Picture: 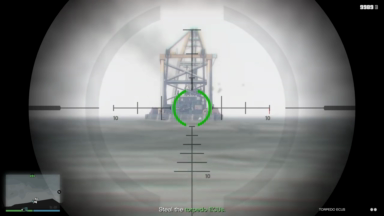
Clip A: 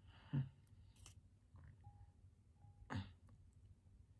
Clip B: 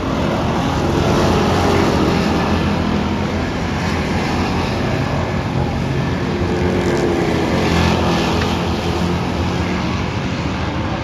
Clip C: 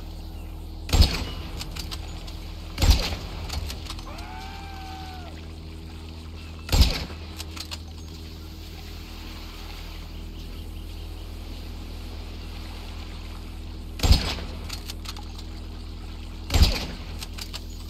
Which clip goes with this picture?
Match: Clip C